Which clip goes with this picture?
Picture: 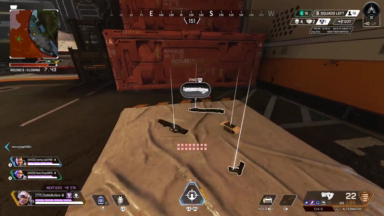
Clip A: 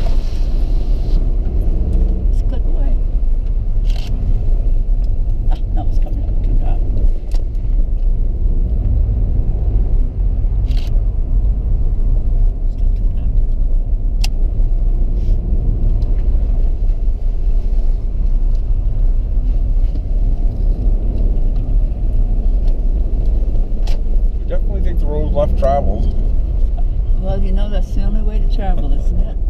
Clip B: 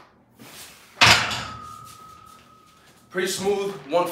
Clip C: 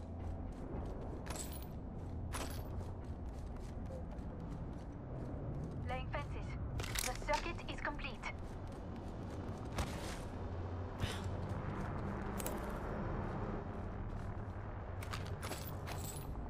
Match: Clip C